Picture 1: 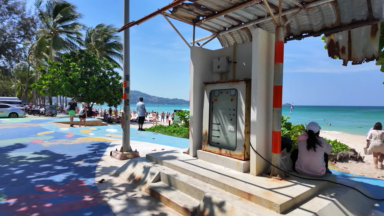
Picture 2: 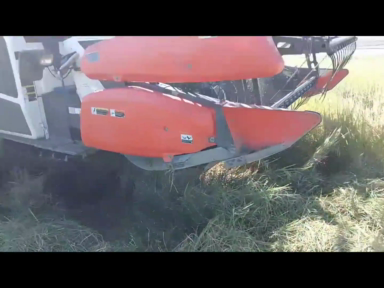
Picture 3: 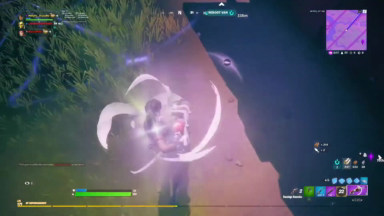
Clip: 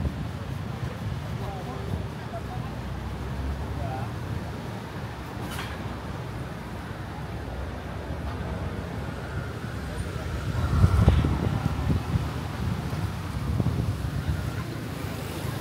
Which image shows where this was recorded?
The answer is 1